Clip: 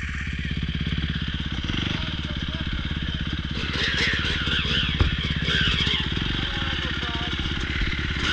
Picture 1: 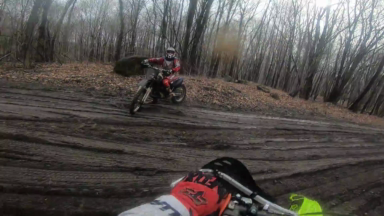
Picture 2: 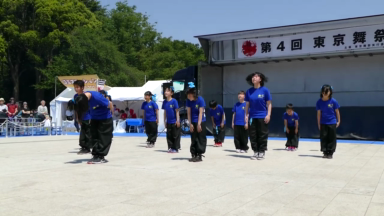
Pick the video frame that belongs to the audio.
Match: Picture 1